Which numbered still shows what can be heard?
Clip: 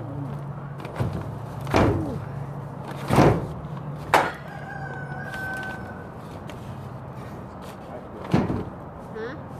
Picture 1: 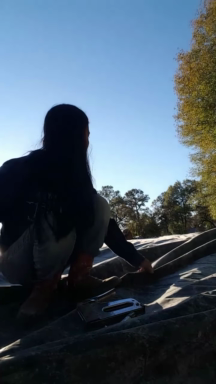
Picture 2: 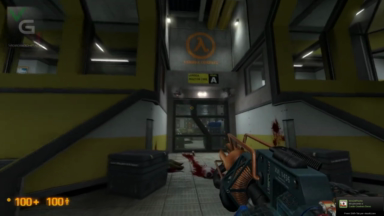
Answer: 1